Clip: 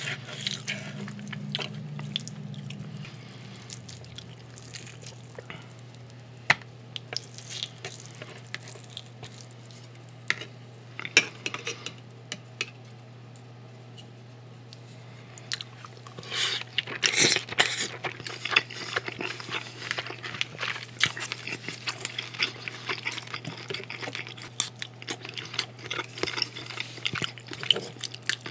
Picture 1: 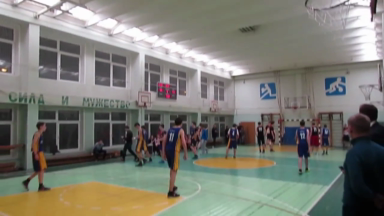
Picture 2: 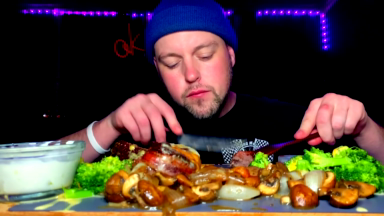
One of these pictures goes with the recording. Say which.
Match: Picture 2